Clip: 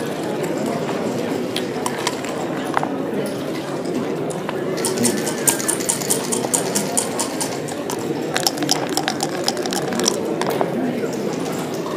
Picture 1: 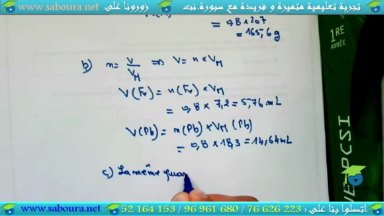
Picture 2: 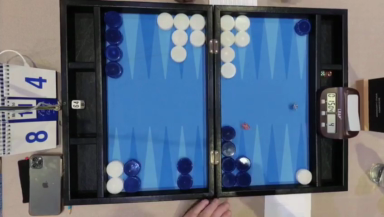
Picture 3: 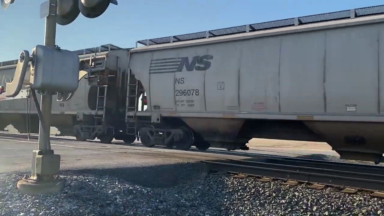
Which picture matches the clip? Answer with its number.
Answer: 2